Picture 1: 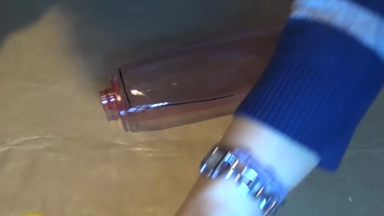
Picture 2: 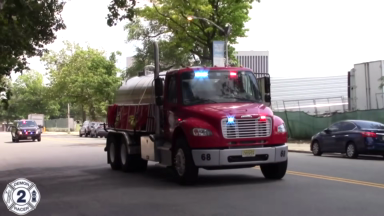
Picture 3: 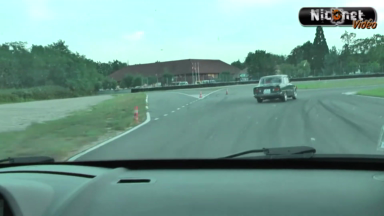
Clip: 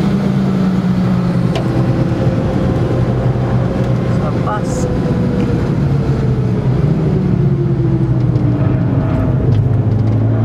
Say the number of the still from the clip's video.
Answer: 3